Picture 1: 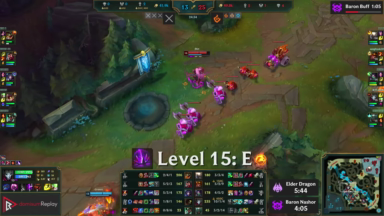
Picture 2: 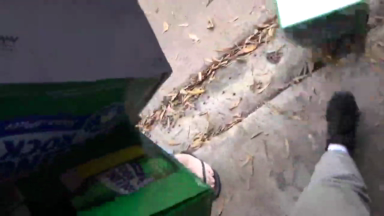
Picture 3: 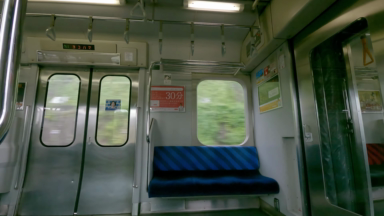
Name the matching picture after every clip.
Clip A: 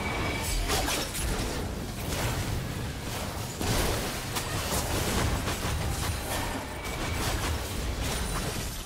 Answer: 1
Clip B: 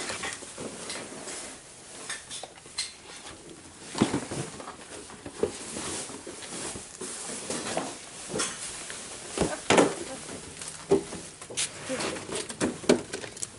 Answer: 2